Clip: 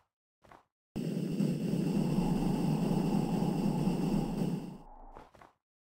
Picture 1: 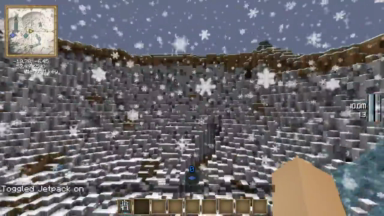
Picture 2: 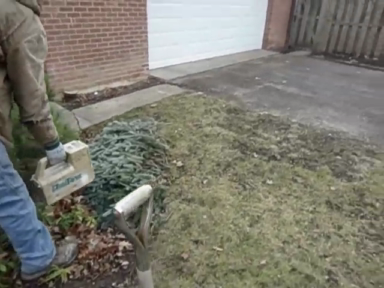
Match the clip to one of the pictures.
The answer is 1